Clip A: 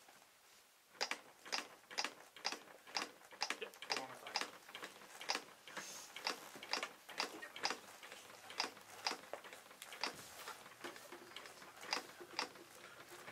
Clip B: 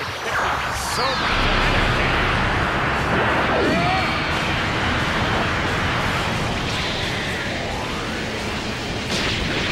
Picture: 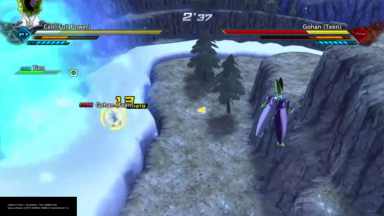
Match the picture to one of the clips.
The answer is B